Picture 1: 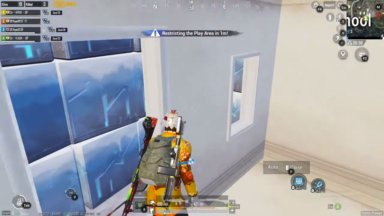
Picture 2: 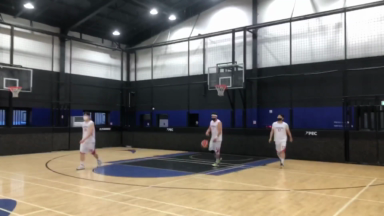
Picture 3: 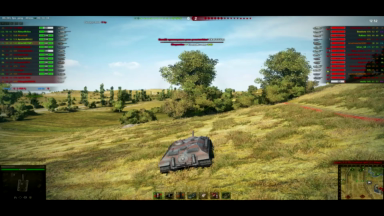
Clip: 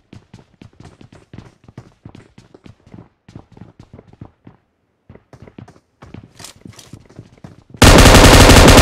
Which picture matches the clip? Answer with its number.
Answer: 1